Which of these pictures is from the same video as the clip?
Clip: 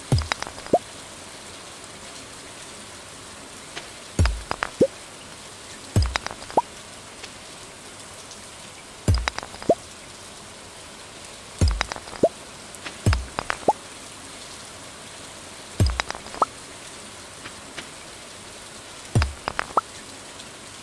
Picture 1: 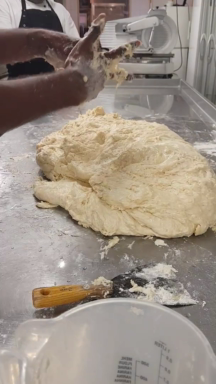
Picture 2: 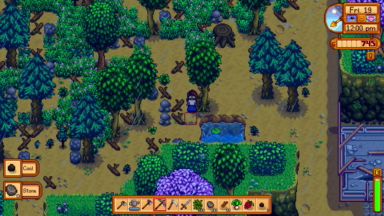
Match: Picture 2